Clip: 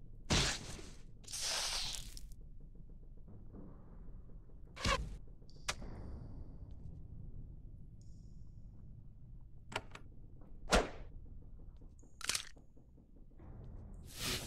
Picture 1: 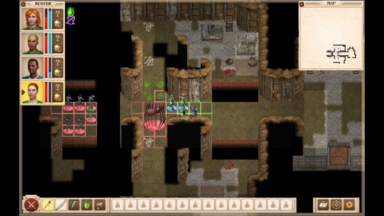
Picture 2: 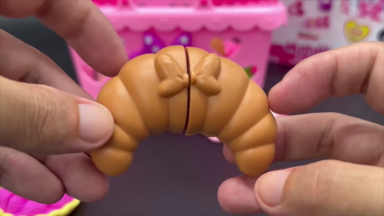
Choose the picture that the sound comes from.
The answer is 1